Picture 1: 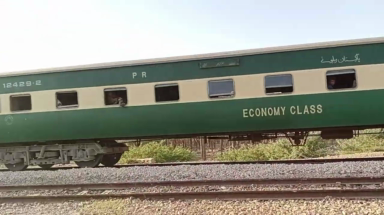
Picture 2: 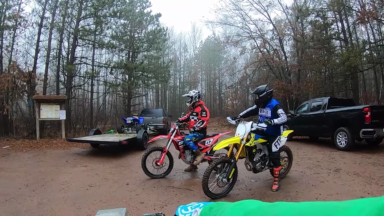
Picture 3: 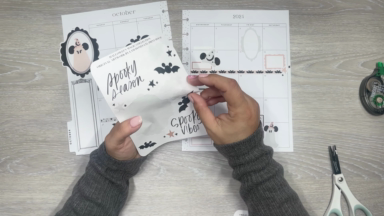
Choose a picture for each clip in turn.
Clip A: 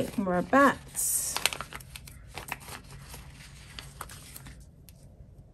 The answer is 3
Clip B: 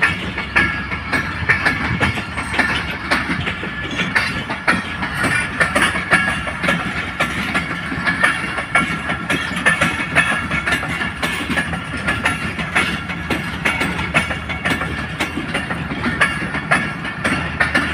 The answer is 1